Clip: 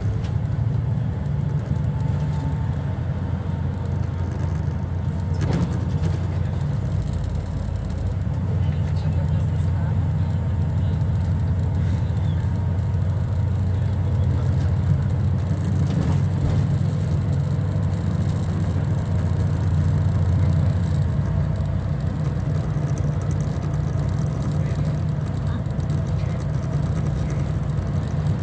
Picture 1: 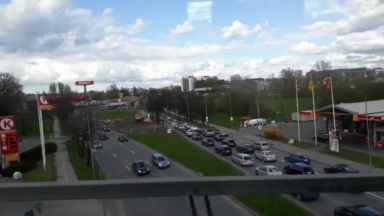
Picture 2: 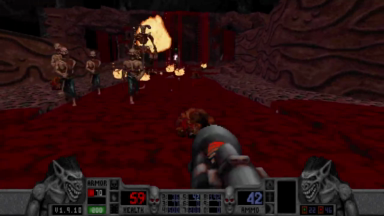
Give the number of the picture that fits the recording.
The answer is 1